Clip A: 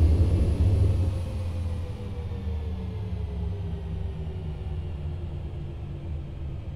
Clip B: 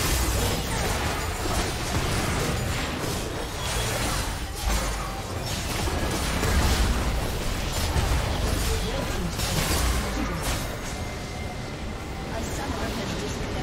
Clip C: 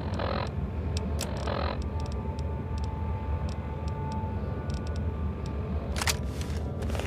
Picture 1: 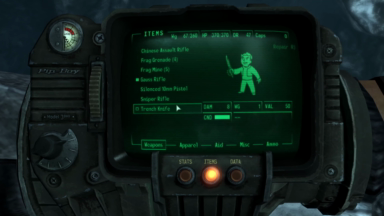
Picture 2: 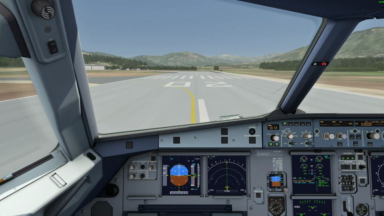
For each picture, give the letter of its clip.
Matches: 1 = C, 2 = A